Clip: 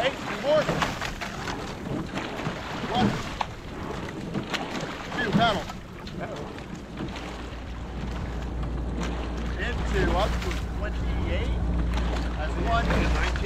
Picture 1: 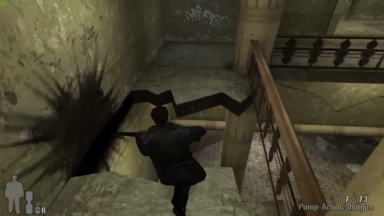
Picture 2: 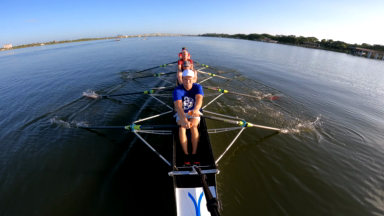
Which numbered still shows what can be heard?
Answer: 2